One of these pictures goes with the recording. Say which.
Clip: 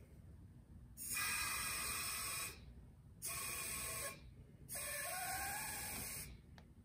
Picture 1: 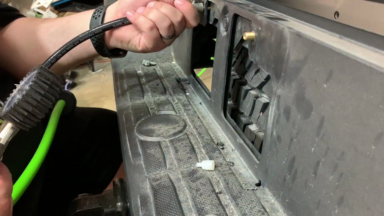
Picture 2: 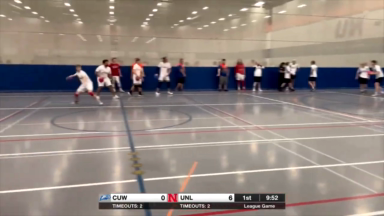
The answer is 1